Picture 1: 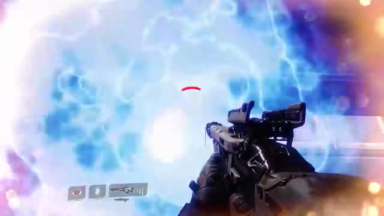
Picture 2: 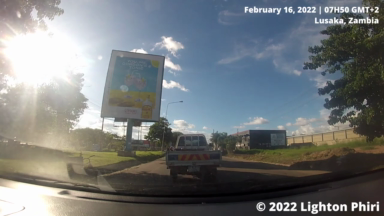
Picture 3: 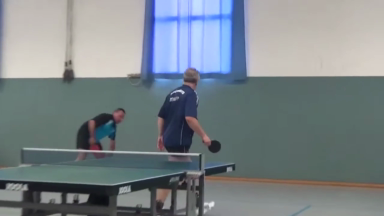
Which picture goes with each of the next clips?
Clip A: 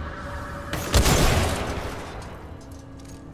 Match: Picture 1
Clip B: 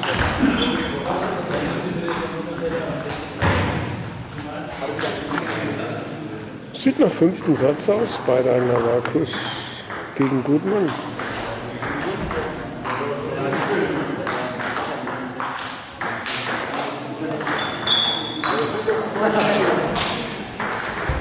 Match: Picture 3